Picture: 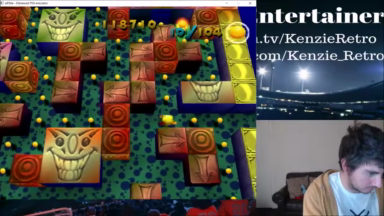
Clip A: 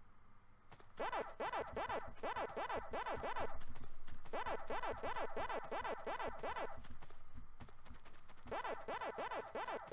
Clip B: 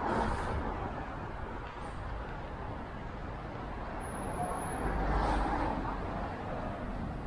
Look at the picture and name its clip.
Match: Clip A